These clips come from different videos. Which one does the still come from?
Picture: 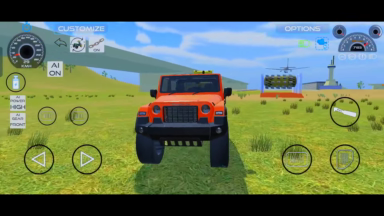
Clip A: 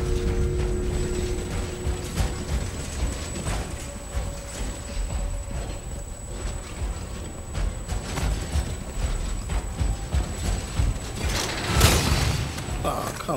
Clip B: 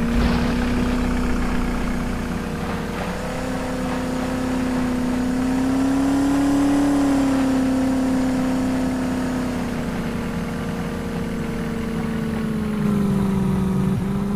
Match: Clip B